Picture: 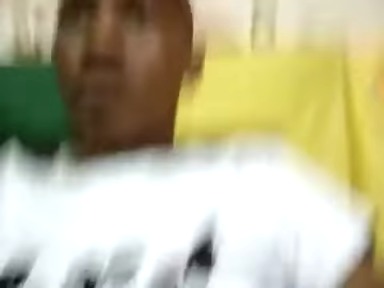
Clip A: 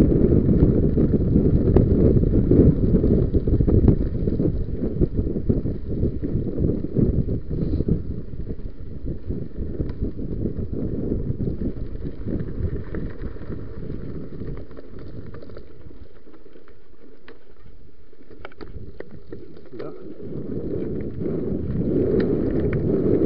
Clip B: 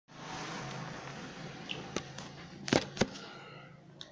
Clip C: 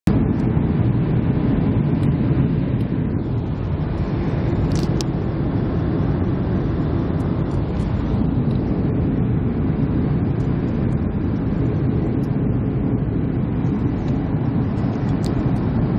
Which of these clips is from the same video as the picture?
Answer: B